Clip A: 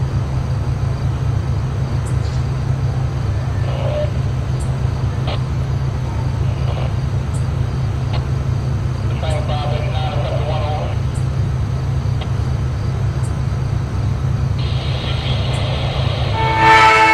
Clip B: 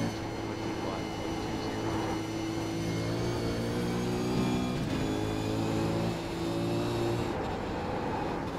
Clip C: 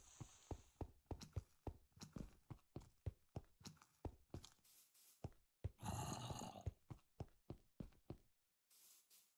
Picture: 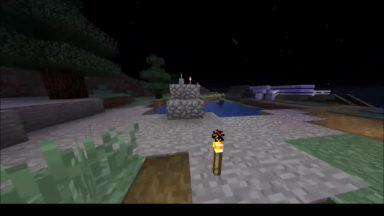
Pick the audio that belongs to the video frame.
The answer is C